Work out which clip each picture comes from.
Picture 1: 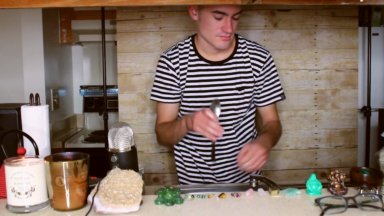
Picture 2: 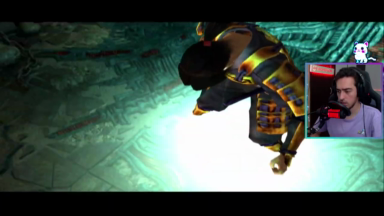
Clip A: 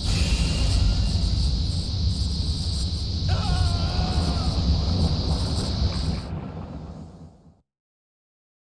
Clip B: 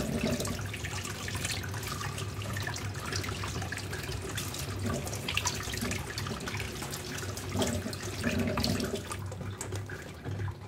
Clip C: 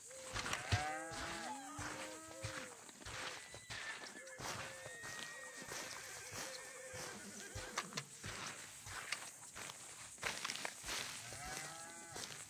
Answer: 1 B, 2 A